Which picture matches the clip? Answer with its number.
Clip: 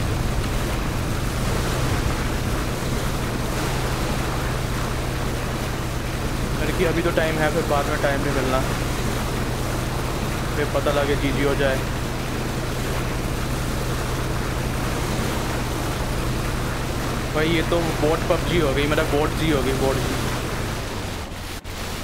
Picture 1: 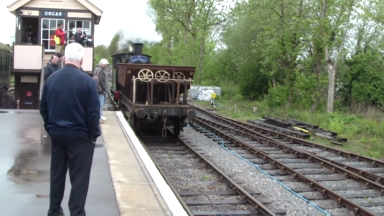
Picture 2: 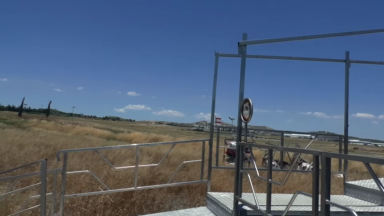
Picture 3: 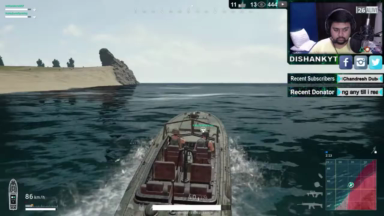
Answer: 3